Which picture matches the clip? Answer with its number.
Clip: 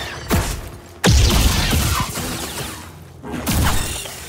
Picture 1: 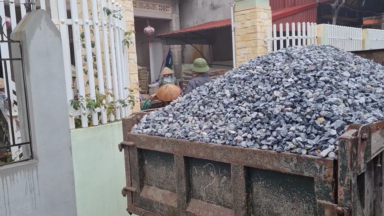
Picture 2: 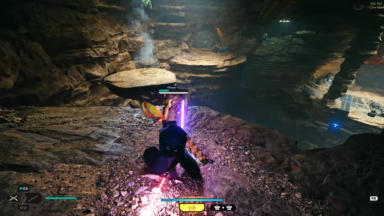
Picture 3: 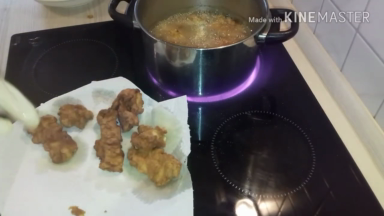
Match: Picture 2